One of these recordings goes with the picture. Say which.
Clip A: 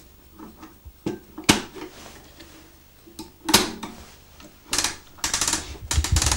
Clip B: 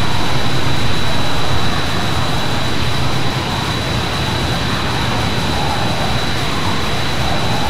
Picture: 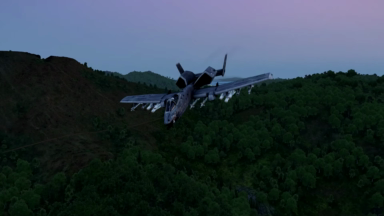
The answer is B